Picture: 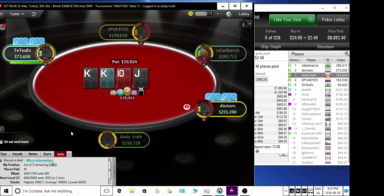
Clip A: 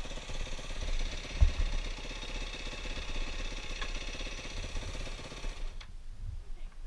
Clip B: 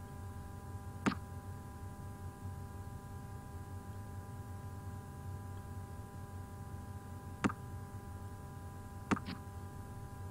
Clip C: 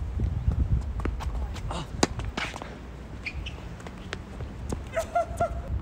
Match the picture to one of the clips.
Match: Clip B